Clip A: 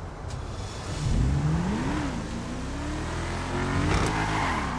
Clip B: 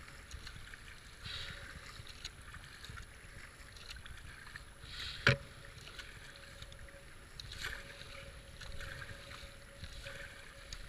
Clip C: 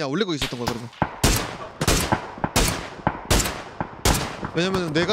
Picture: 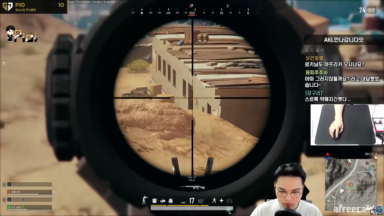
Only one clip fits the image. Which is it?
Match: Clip C